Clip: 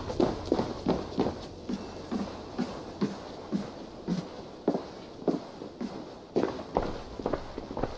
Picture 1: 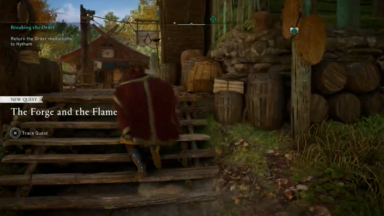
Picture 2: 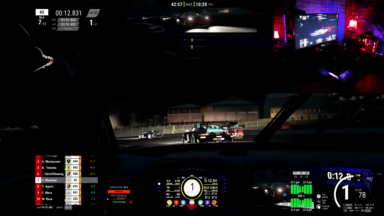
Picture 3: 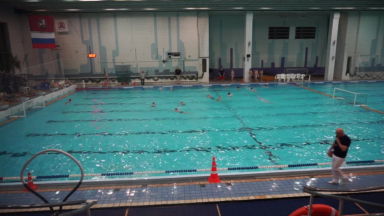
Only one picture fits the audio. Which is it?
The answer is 1